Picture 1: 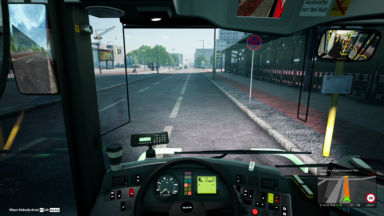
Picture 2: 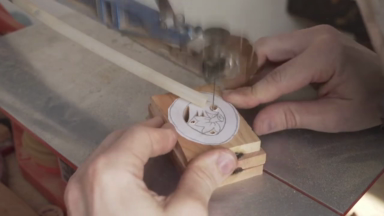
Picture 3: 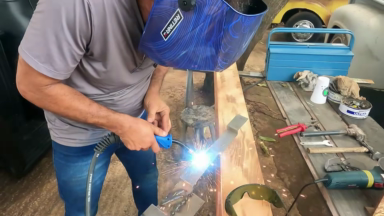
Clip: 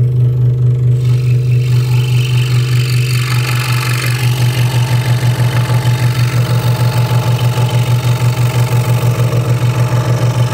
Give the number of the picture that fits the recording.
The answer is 2